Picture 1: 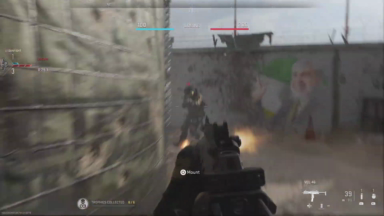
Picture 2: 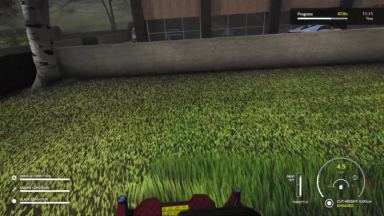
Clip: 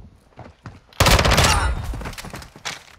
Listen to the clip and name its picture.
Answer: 1